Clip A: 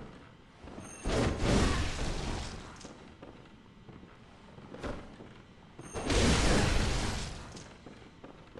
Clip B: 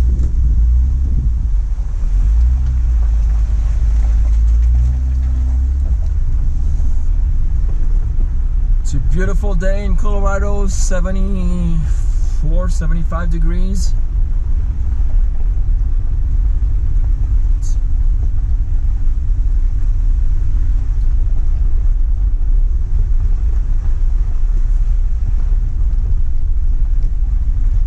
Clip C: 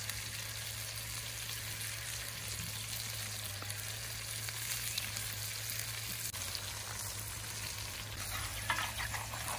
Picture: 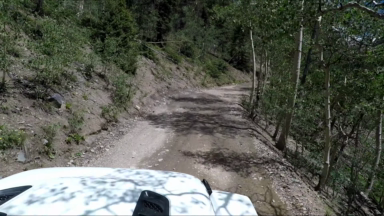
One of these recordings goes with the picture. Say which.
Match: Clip B